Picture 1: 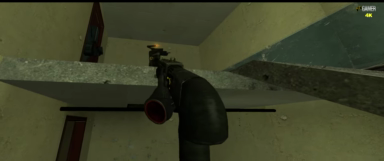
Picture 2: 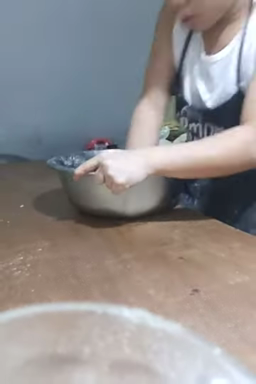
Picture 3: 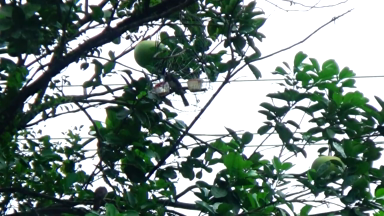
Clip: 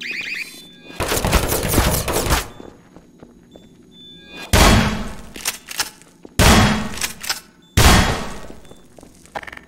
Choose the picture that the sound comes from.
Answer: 1